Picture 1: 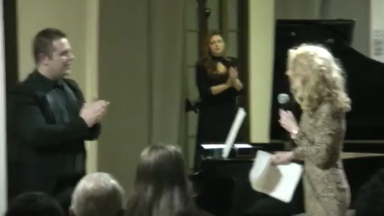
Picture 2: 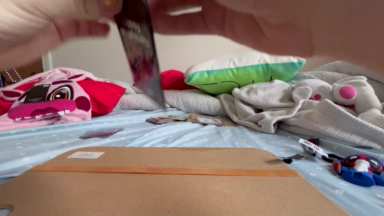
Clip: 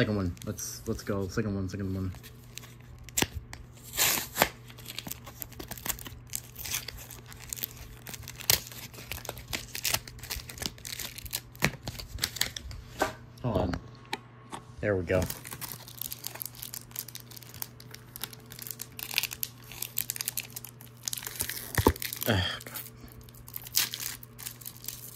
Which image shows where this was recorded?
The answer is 2